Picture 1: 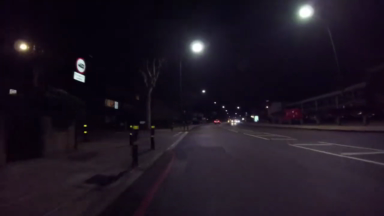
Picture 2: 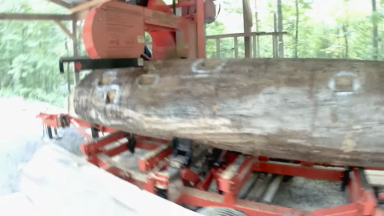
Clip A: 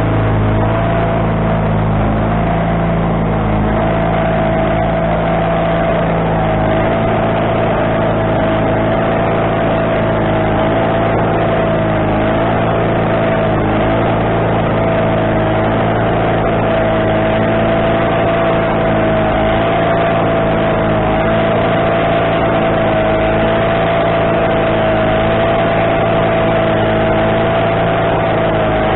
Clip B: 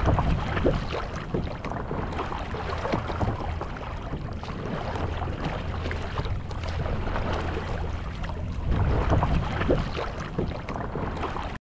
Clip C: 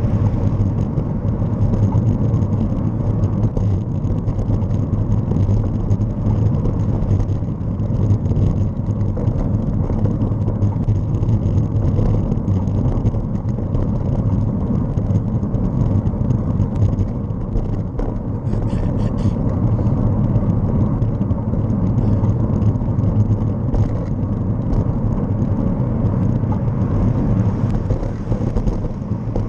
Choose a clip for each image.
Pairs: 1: C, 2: A